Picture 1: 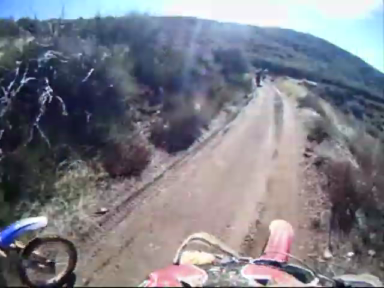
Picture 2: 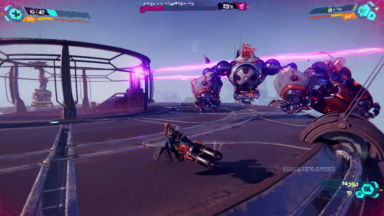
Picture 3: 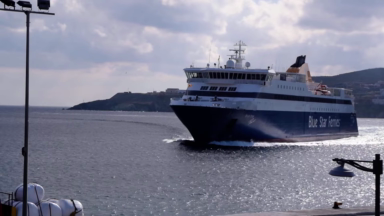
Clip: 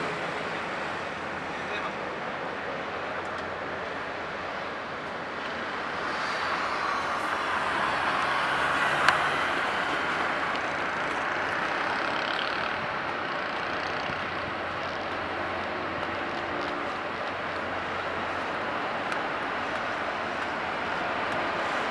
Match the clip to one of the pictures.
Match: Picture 3